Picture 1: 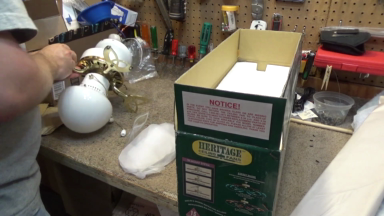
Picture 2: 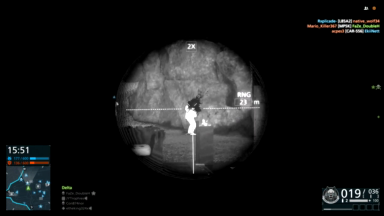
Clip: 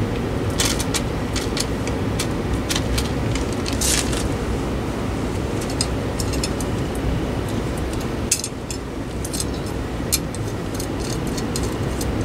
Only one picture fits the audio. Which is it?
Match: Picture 1